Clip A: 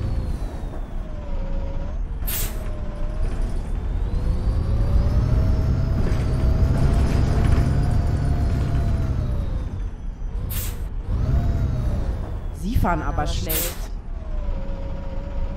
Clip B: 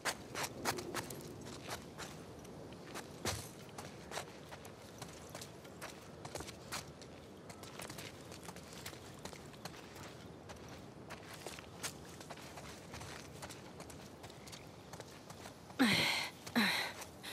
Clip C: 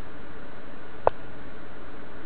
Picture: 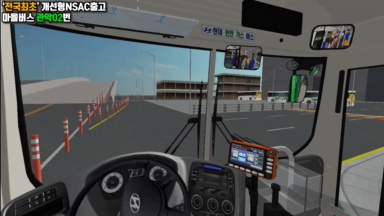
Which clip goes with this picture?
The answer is A